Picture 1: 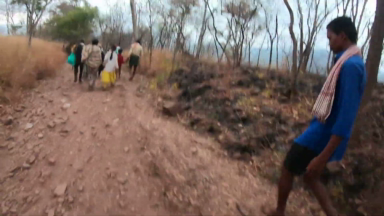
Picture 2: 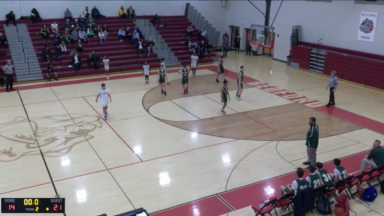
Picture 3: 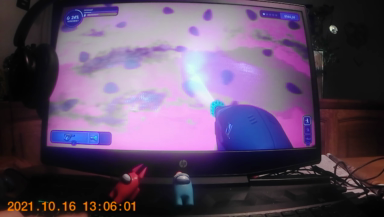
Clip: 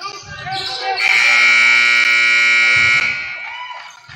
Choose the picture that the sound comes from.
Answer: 2